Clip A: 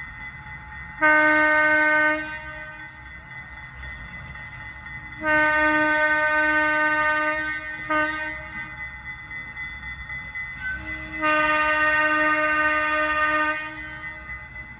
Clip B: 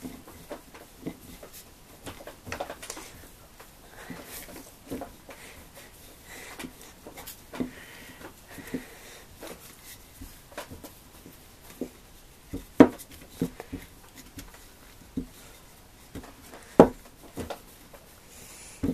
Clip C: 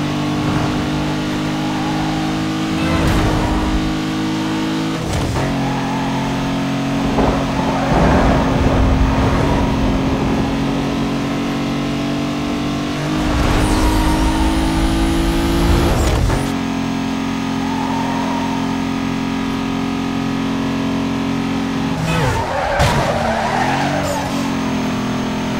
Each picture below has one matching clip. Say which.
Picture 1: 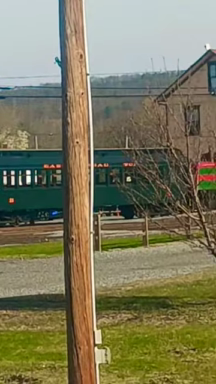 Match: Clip A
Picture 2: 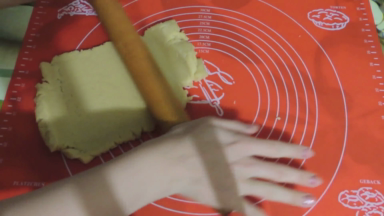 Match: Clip B